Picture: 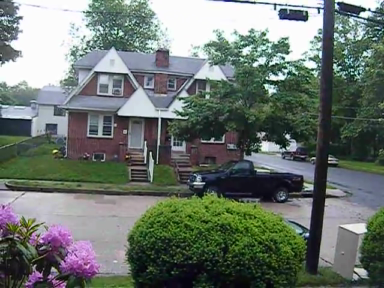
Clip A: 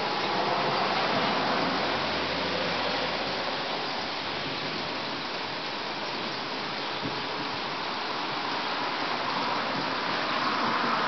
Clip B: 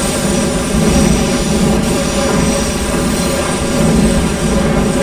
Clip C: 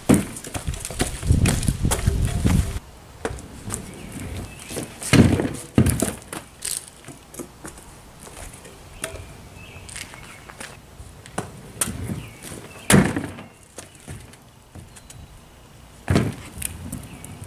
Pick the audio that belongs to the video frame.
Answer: A